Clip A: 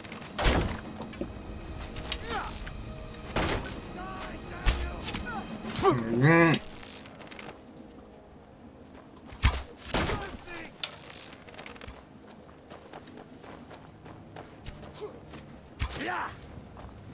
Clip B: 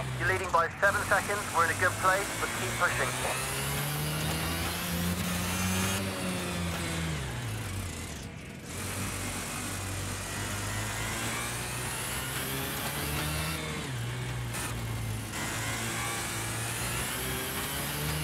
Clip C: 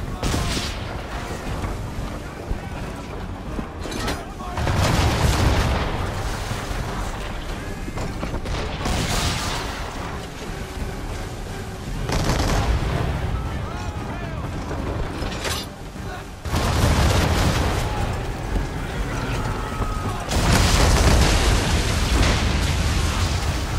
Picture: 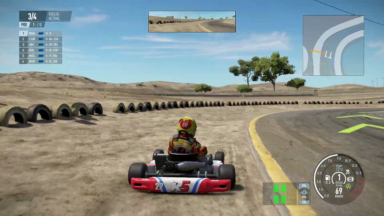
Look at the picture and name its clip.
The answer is B